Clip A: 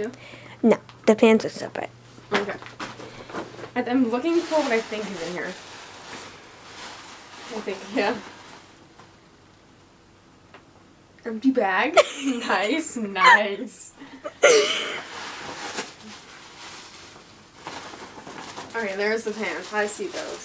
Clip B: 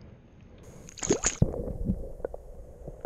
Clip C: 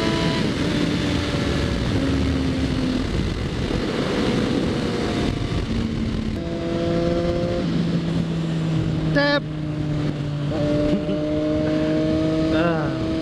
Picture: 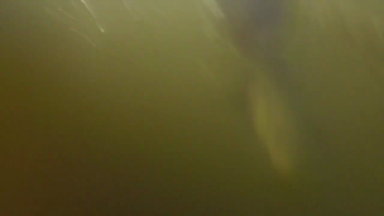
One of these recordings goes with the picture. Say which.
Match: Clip B